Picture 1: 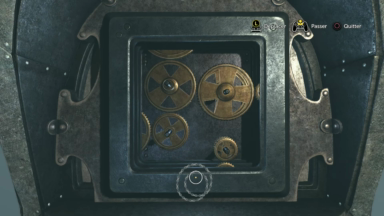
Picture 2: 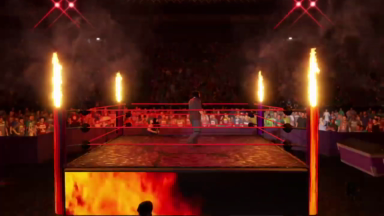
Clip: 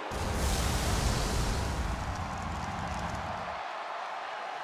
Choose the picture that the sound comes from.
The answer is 2